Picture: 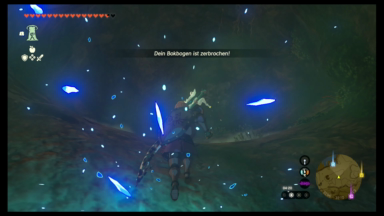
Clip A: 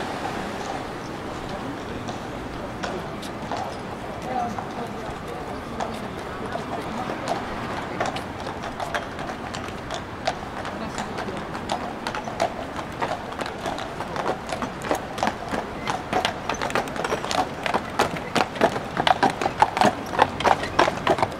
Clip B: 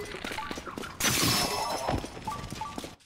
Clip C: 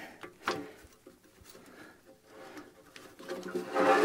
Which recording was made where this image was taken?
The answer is B